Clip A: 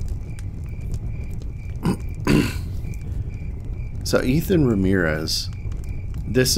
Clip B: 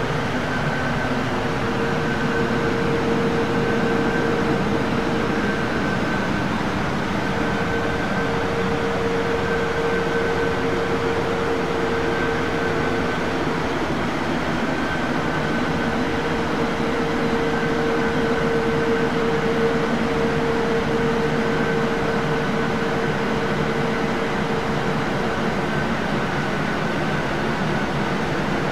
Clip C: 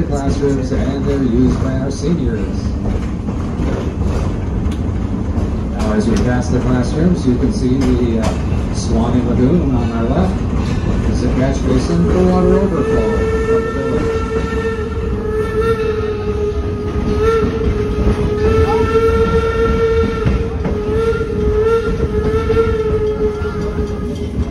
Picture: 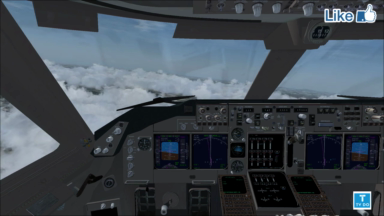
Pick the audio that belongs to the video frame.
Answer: B